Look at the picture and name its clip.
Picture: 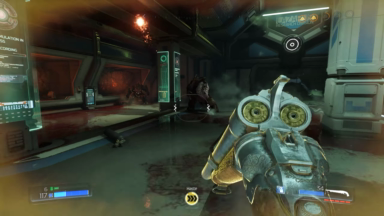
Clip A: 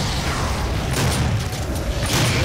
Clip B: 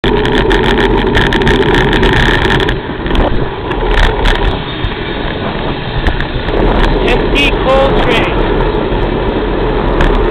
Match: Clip A